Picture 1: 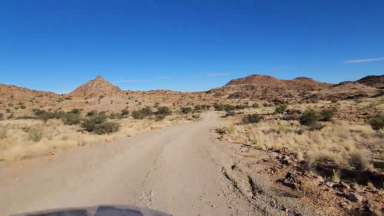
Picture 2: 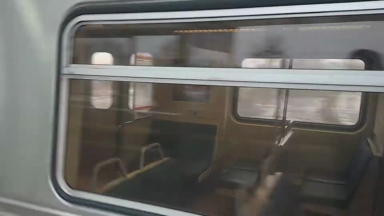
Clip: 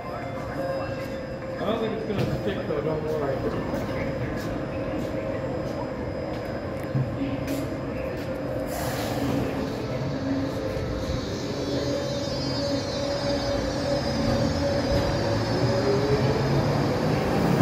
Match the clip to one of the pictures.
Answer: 2